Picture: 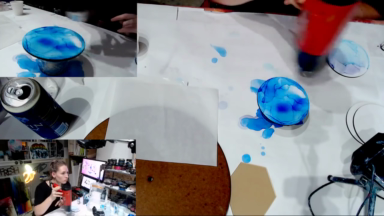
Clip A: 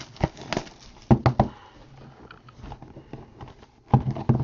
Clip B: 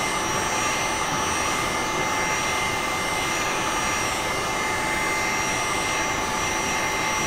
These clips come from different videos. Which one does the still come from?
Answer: B